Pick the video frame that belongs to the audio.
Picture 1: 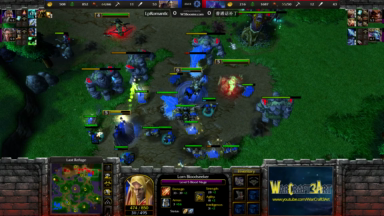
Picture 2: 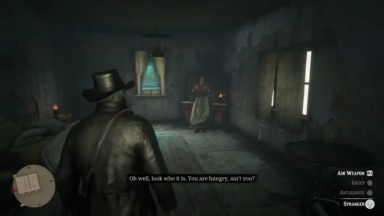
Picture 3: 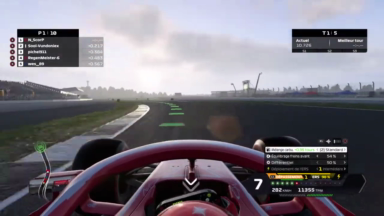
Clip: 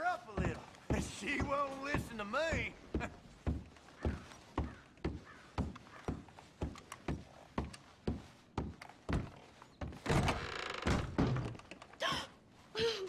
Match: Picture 2